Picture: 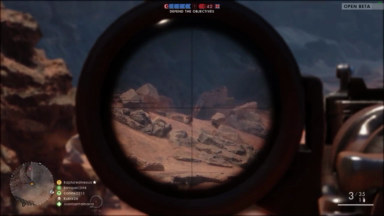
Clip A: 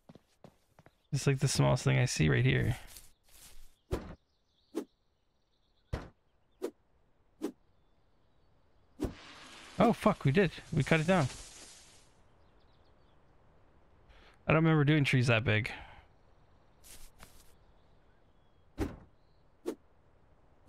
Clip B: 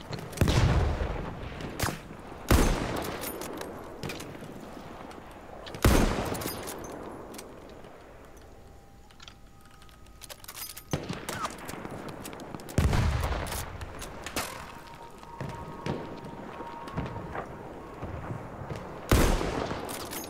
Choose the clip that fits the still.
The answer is B